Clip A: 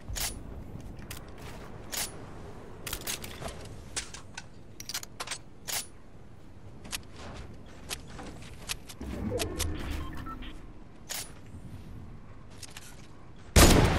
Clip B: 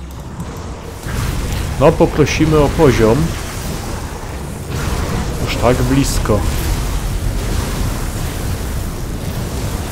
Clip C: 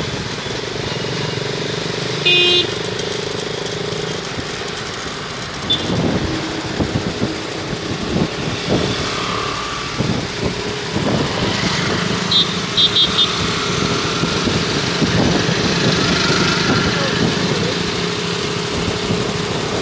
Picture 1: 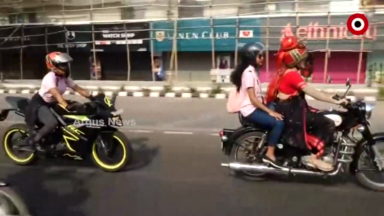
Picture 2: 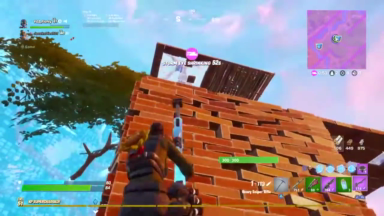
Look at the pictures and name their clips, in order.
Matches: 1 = C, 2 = A